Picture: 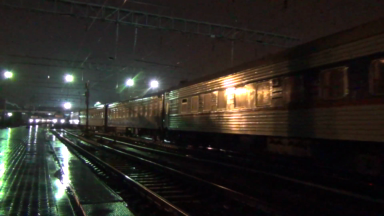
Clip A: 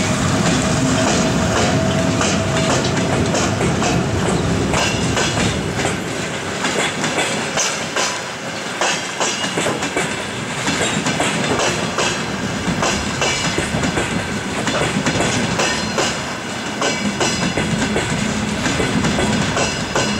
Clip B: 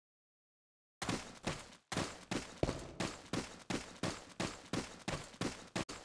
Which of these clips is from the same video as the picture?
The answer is A